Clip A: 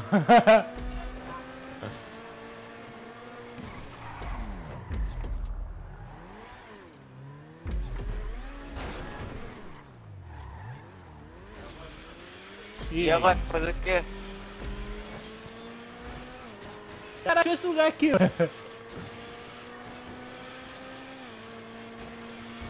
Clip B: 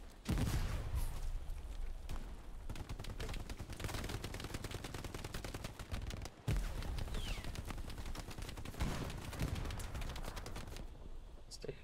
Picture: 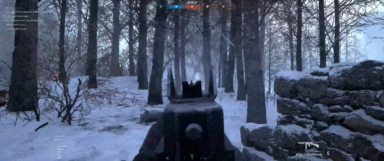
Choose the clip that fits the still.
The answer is B